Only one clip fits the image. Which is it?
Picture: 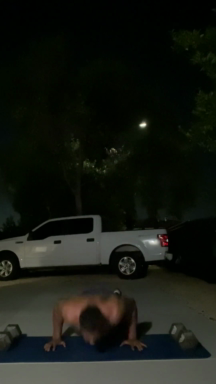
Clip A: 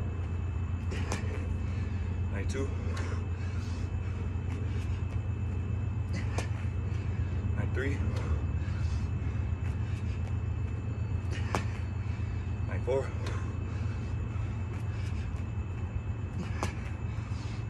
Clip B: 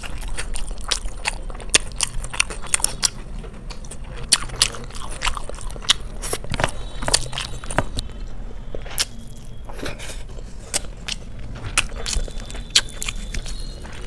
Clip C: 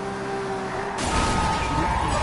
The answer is A